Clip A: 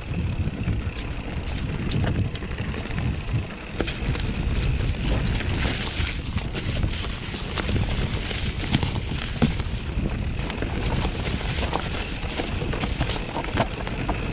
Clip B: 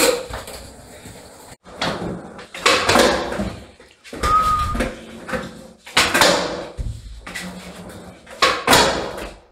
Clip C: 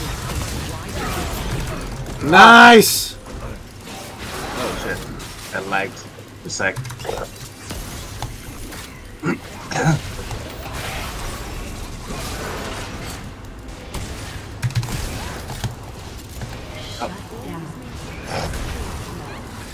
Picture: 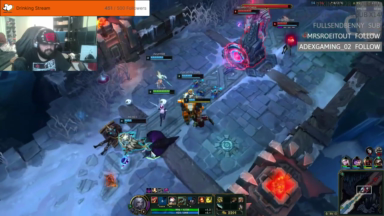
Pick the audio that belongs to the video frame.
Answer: C